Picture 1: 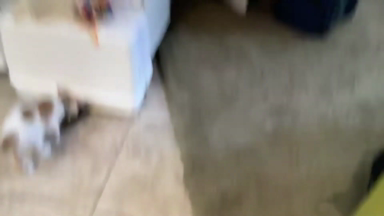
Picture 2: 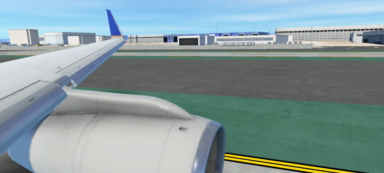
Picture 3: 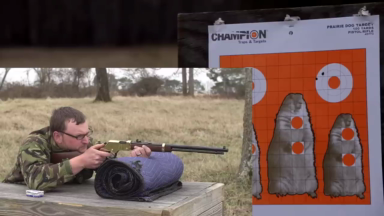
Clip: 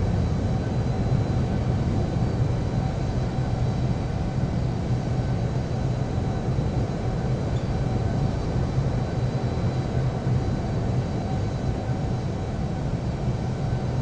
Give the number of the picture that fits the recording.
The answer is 2